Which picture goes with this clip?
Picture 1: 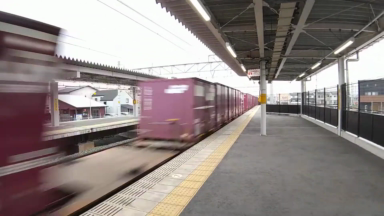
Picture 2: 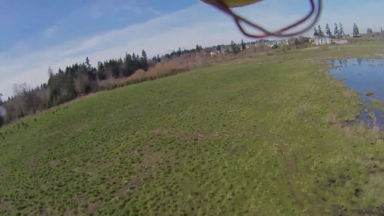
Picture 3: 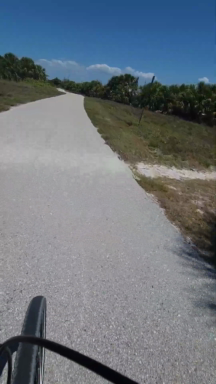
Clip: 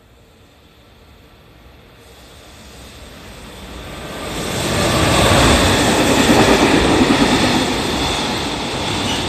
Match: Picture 1